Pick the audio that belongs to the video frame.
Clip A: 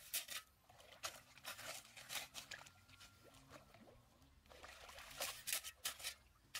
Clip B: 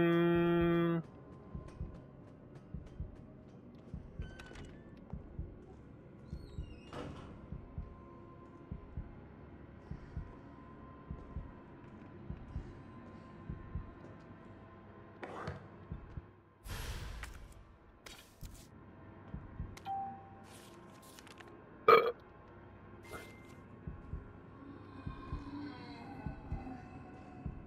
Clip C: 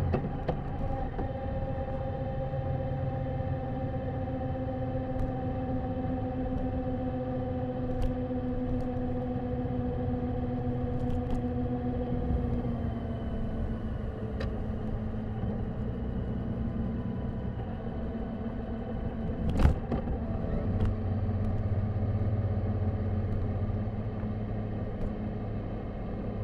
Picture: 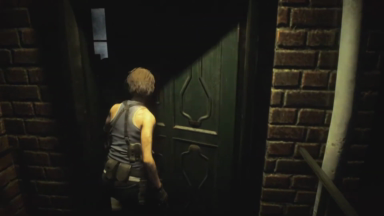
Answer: B